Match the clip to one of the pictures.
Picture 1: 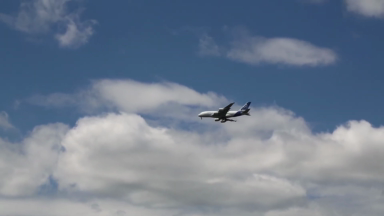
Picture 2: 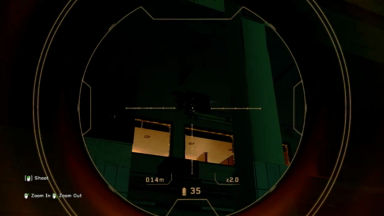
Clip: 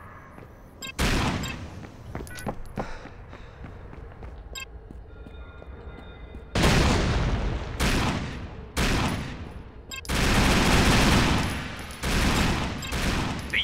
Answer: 2